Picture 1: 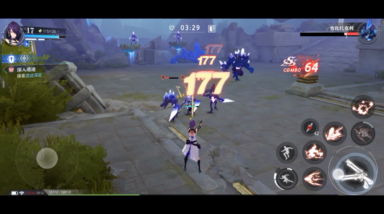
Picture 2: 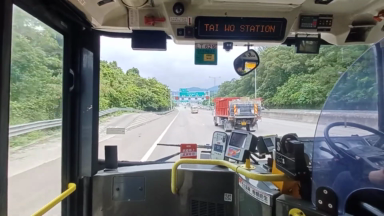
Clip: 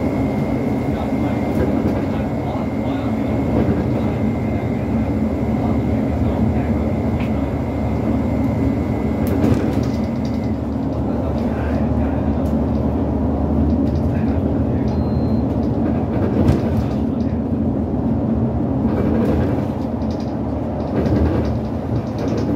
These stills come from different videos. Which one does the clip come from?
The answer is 2